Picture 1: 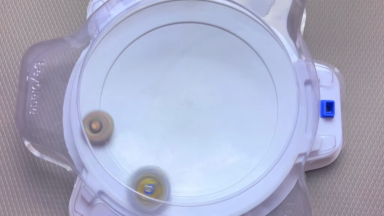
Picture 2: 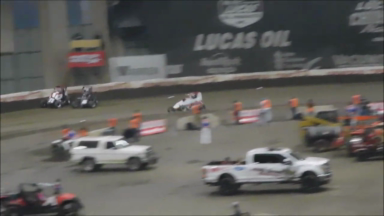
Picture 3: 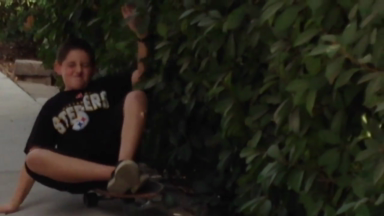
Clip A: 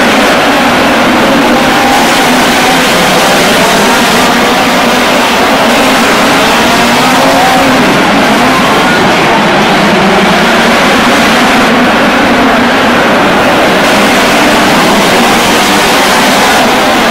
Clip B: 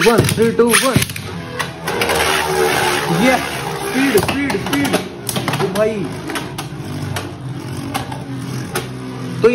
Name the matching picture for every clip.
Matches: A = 2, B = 1